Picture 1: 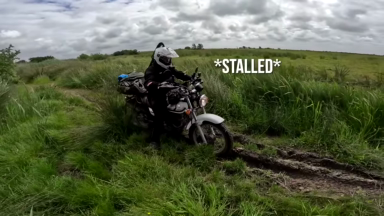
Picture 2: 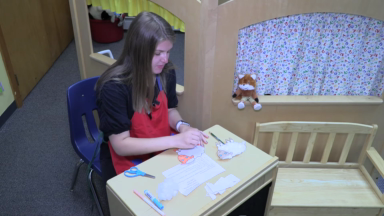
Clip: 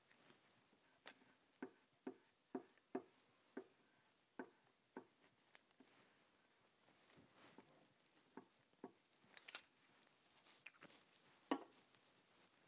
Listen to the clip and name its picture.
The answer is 2